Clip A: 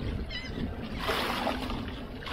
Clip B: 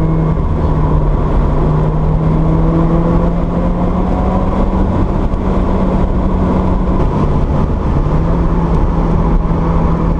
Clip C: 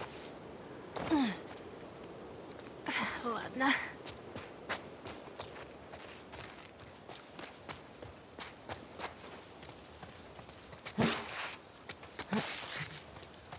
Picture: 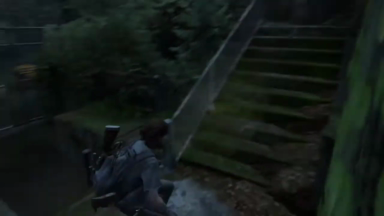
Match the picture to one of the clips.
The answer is C